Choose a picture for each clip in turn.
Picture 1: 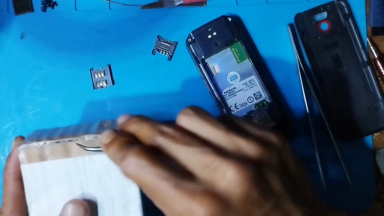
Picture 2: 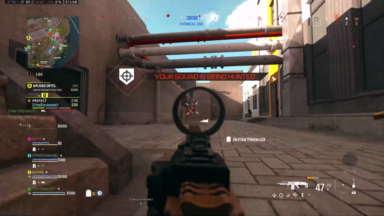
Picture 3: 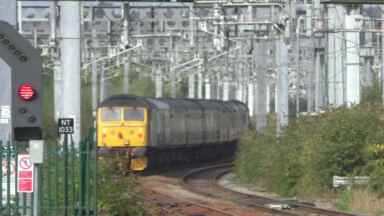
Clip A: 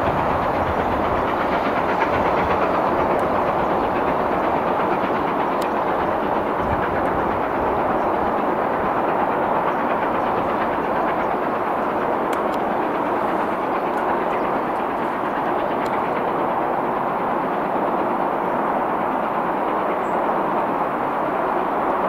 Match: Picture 3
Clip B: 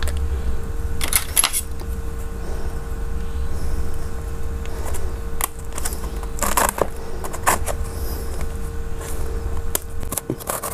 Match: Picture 1